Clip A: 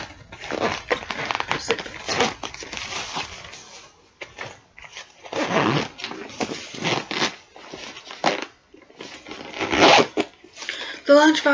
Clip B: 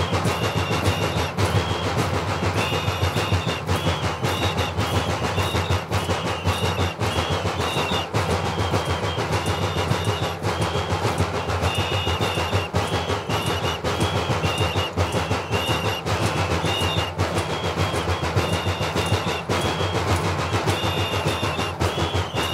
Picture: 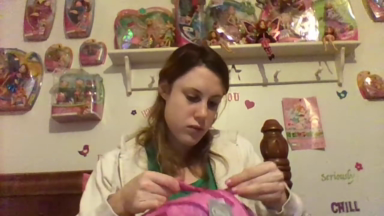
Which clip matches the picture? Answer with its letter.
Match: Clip A